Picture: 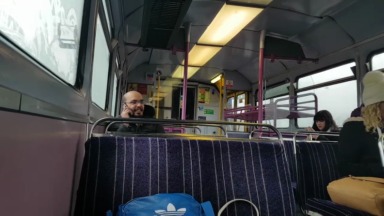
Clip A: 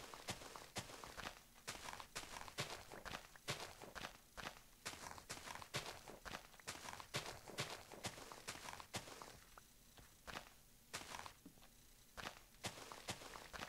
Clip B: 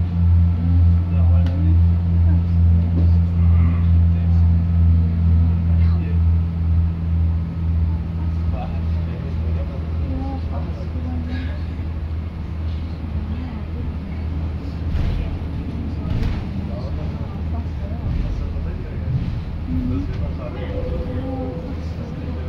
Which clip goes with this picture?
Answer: B